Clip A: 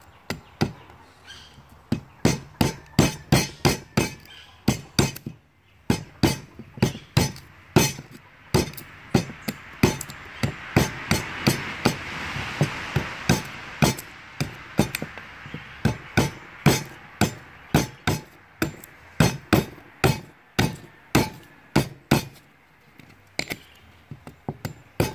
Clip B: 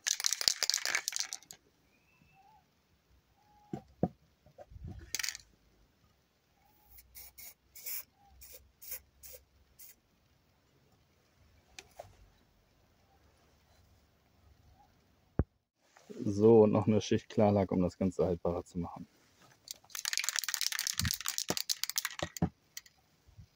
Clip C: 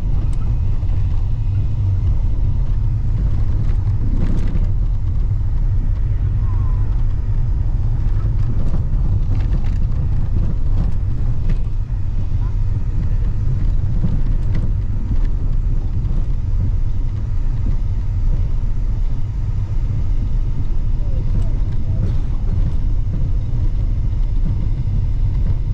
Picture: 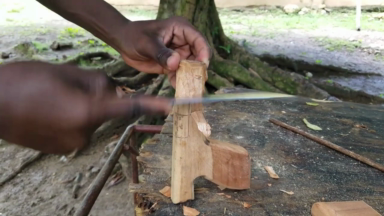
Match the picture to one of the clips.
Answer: A